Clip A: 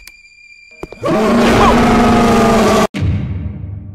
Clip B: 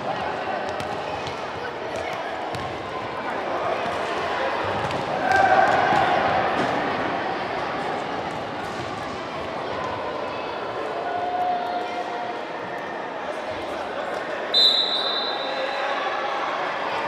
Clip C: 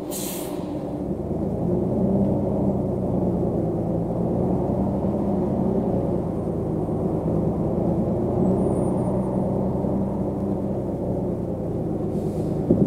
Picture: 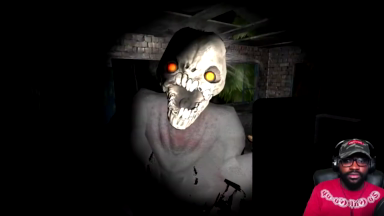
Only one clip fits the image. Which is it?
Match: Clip A